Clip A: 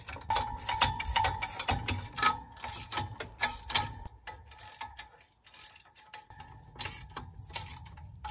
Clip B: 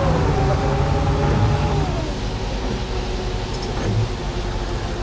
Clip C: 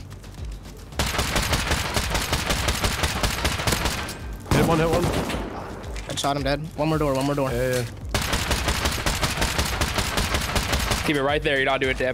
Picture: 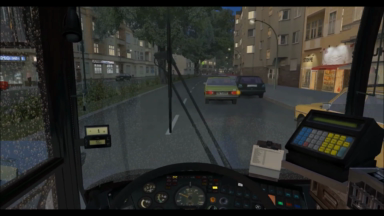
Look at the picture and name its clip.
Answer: B